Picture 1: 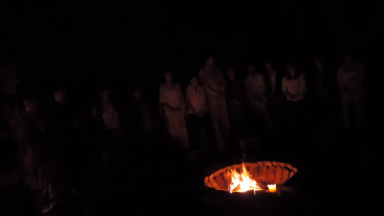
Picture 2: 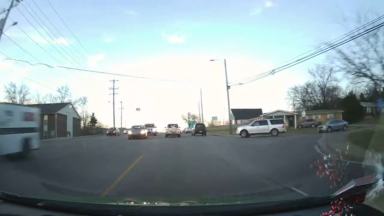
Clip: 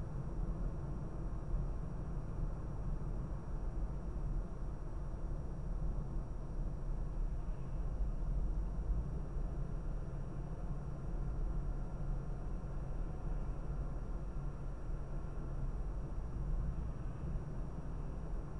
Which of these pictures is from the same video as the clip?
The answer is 2